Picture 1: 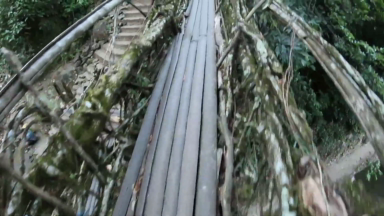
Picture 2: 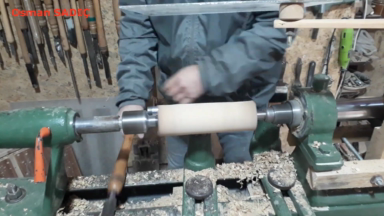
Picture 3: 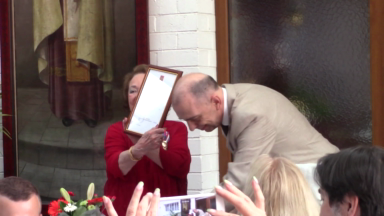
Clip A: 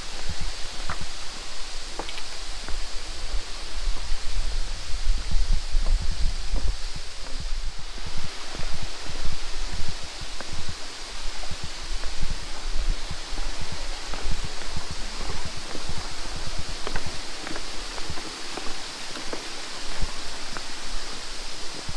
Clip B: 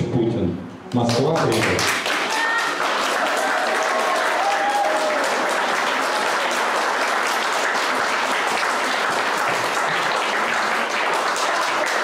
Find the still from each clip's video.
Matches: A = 1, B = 3